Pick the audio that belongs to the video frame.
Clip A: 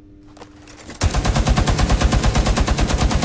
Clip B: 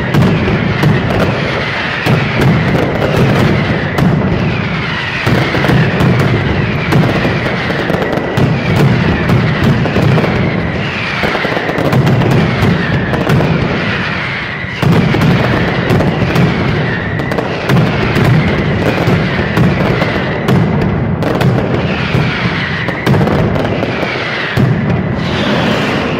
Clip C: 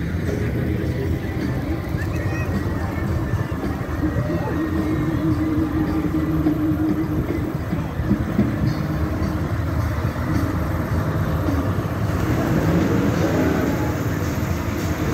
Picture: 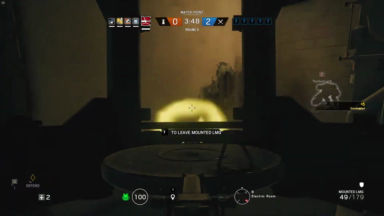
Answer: A